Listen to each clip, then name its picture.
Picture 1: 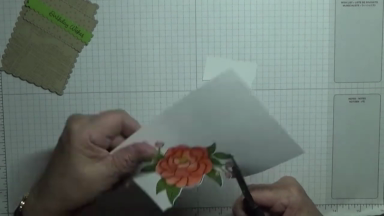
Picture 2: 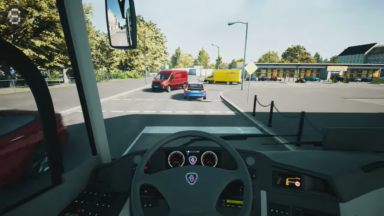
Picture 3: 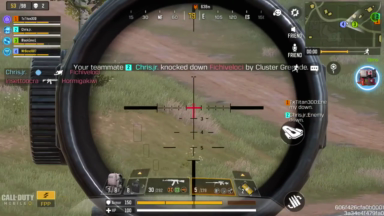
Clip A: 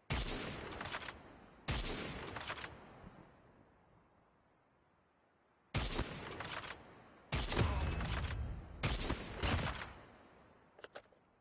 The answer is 3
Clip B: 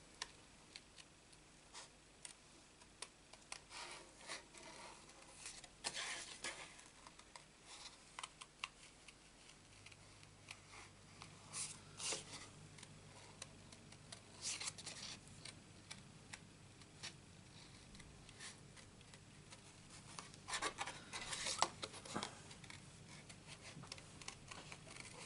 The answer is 1